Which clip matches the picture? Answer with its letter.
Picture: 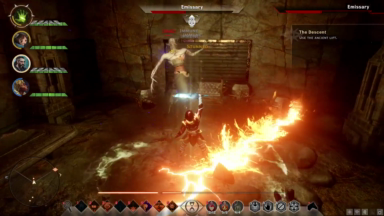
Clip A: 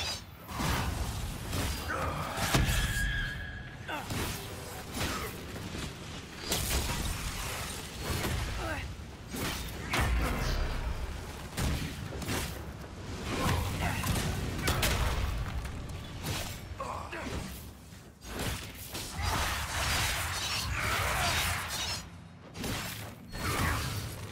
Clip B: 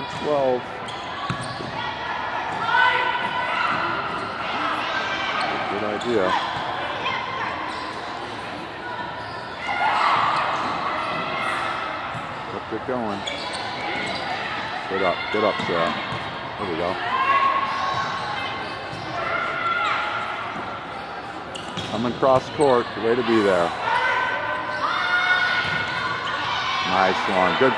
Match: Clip A